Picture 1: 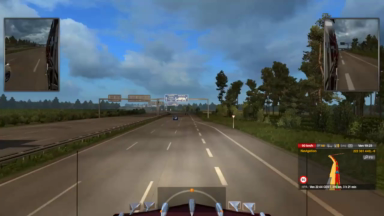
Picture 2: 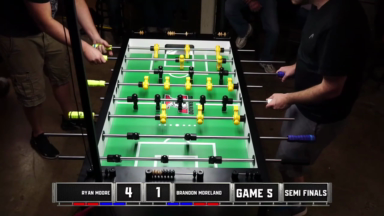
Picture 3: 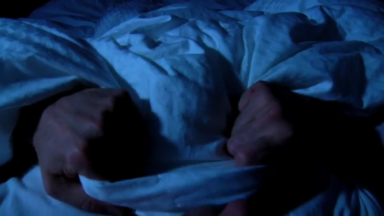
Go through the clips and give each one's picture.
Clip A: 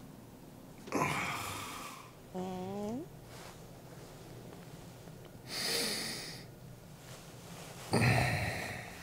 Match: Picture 3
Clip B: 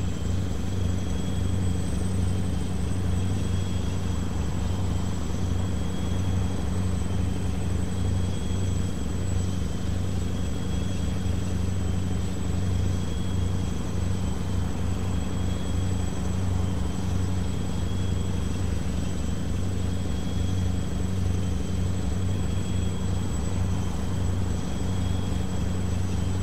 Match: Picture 1